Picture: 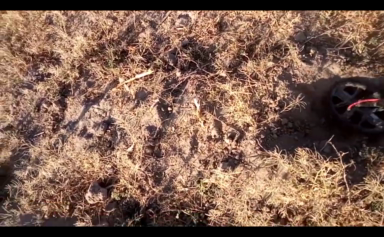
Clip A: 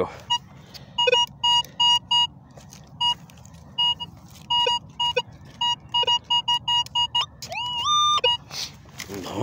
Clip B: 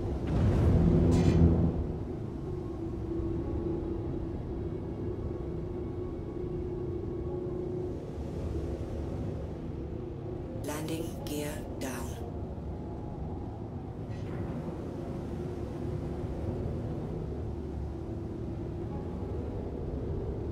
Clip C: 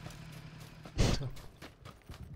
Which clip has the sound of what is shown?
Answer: A